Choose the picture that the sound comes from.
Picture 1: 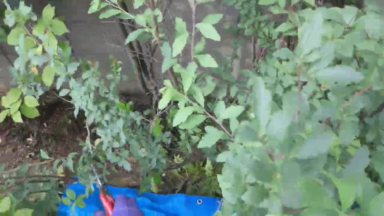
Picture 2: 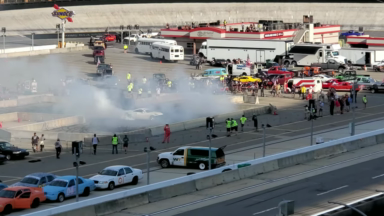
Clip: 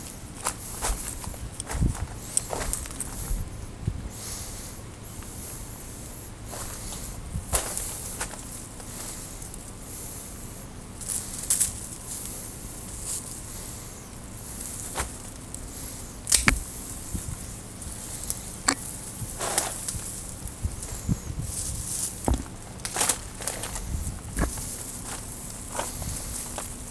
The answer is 1